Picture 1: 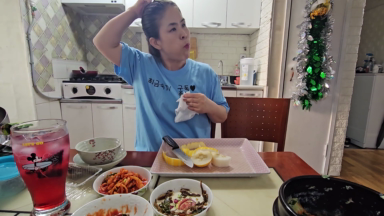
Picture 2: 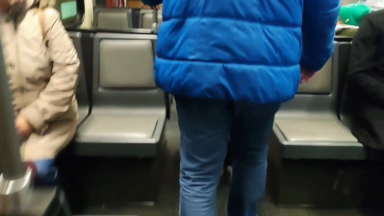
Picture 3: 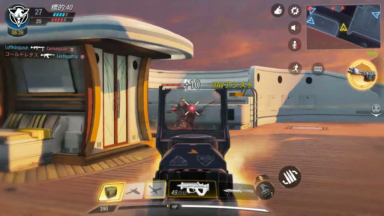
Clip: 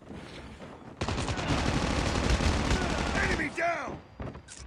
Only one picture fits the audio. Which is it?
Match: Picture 3